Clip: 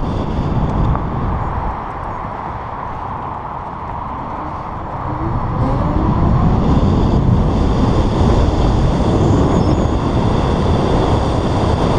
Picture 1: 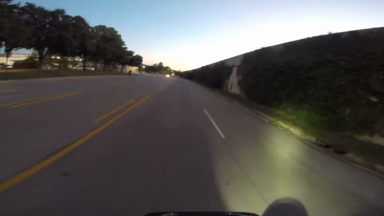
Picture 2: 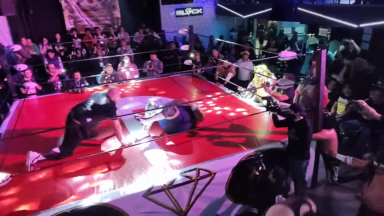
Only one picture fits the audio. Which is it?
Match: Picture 1